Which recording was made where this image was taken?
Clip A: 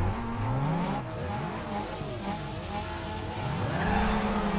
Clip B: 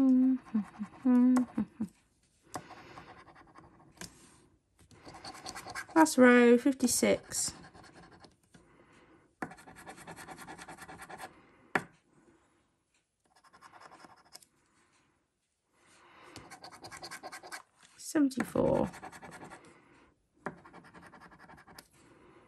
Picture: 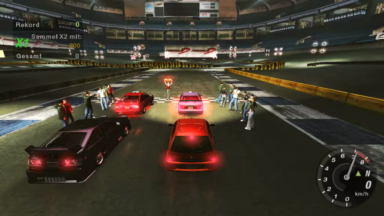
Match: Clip A